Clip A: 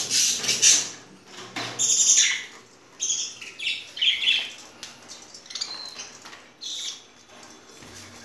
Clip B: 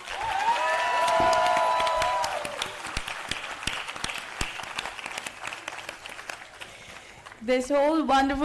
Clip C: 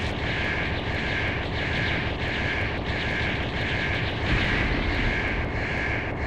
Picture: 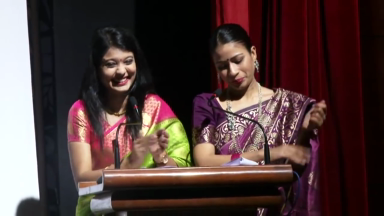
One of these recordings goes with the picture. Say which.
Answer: B